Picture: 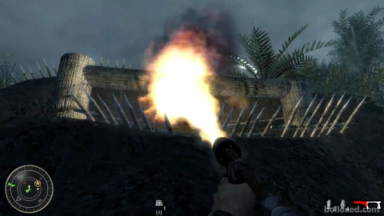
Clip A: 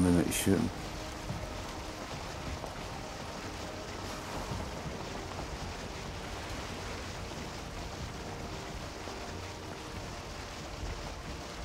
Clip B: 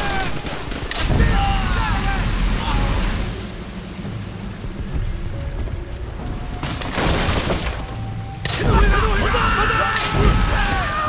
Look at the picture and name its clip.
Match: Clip B